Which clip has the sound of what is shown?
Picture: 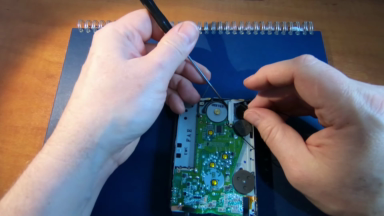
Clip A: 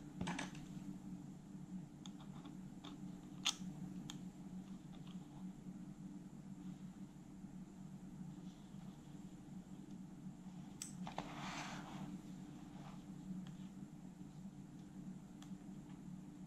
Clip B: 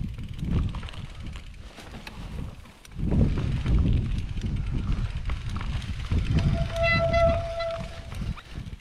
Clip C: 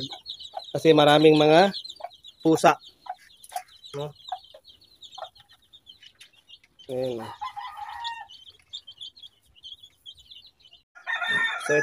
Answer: A